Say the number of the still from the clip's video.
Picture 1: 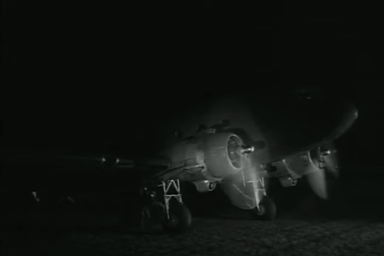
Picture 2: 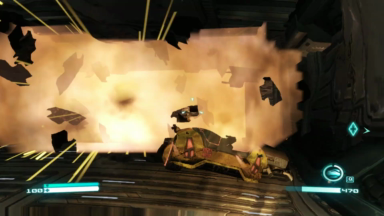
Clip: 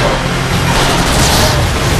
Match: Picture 2